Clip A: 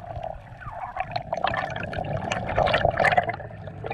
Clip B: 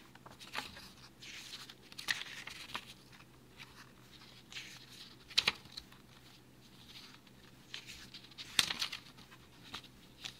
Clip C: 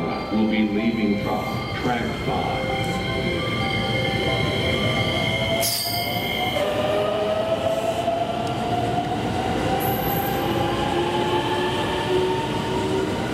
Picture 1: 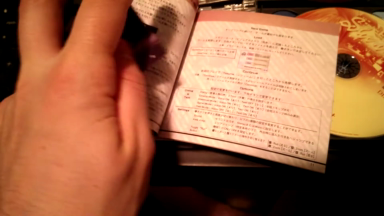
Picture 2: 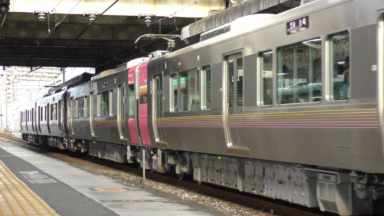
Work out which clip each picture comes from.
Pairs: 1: B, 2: C